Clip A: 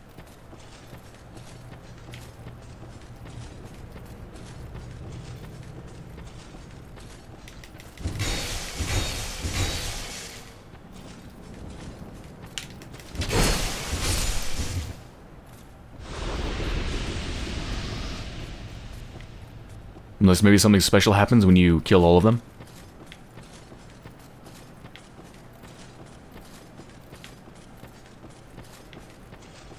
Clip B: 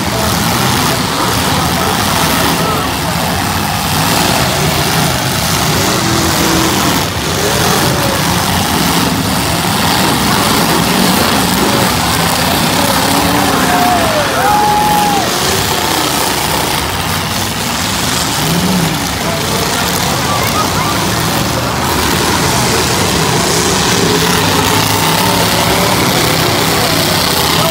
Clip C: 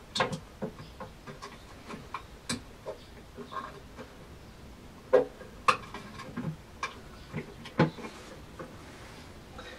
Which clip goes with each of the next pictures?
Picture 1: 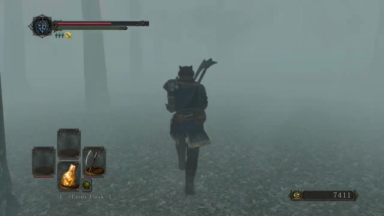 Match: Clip A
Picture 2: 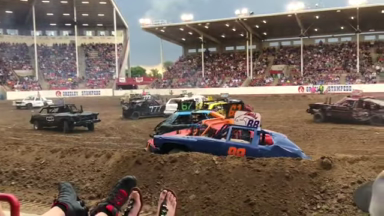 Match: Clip B